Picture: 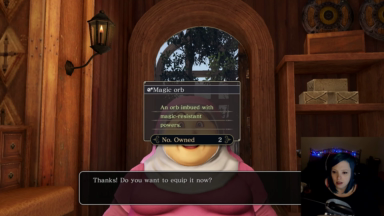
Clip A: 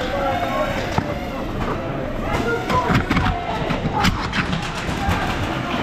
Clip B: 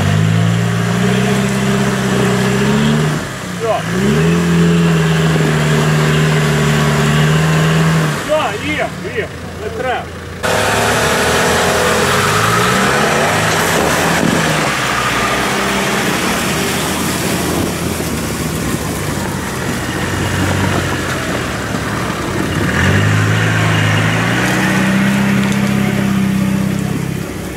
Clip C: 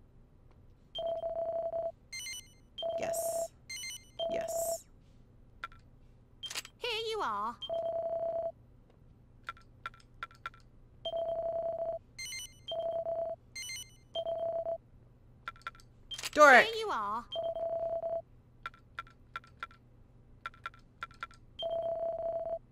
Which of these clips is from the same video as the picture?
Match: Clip C